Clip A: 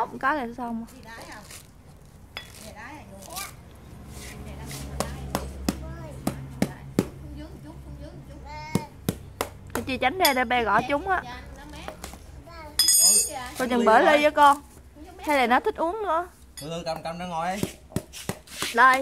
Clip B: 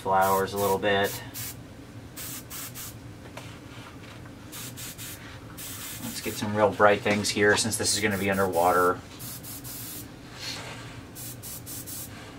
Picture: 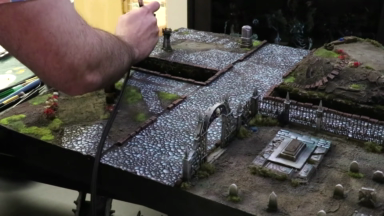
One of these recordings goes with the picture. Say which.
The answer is B